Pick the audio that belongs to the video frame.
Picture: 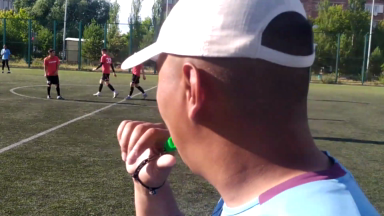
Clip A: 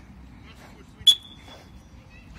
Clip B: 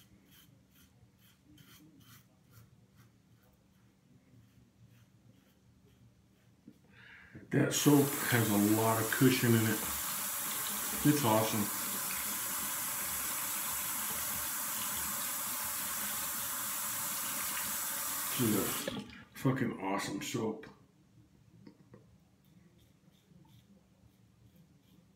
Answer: A